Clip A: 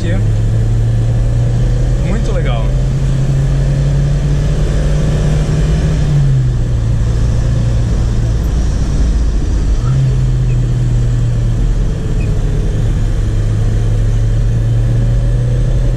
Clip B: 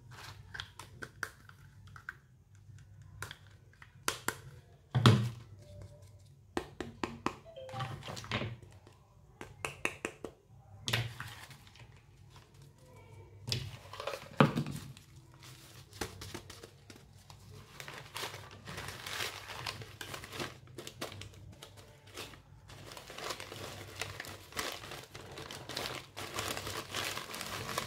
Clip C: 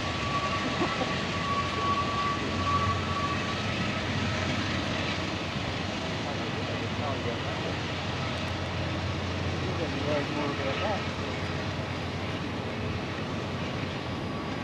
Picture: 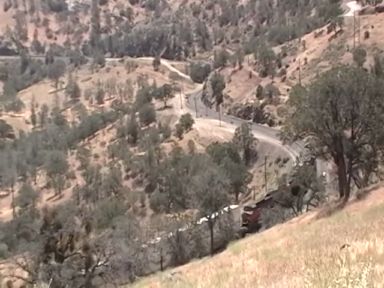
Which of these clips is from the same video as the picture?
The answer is C